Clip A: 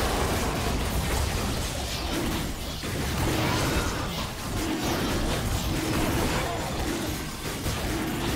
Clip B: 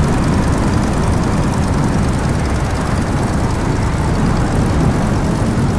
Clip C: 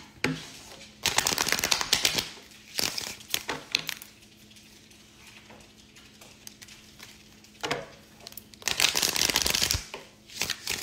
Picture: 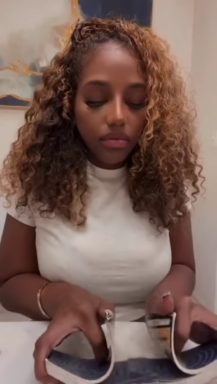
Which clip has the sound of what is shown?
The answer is C